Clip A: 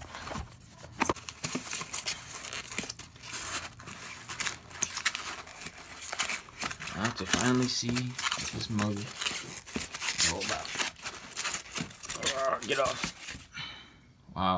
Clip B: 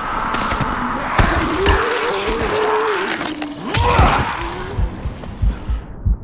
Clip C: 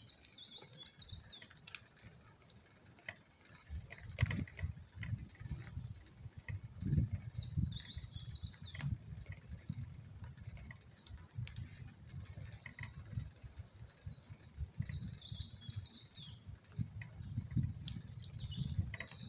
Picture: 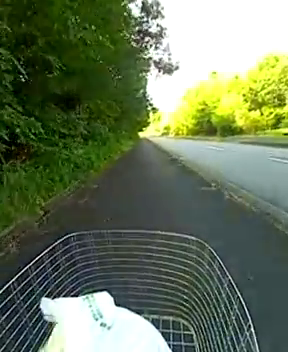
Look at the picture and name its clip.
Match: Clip C